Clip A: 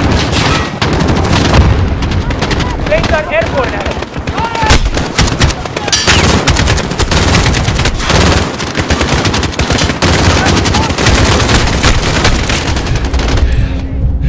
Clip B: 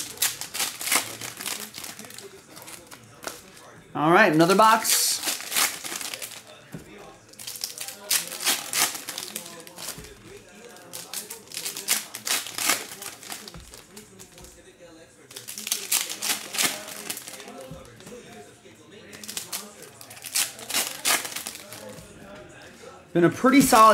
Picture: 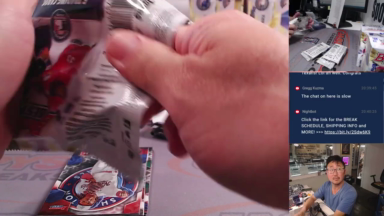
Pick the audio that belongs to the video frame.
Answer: B